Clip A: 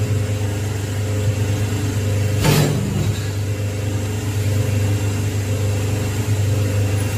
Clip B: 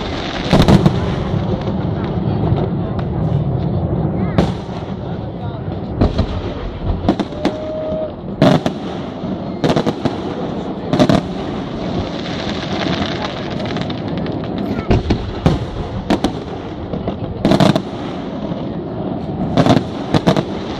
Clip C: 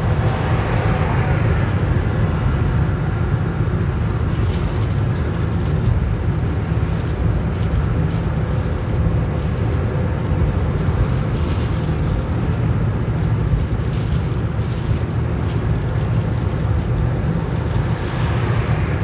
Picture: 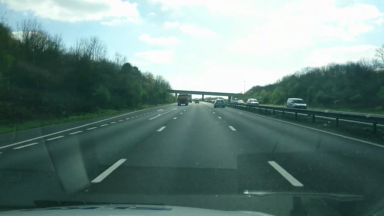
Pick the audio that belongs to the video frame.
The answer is C